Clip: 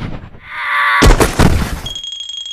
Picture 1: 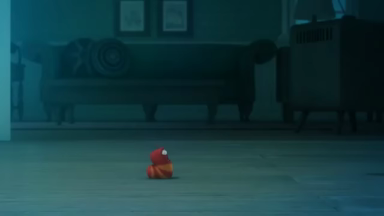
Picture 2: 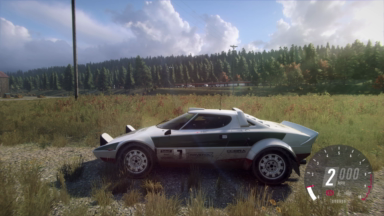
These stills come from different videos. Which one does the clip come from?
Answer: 1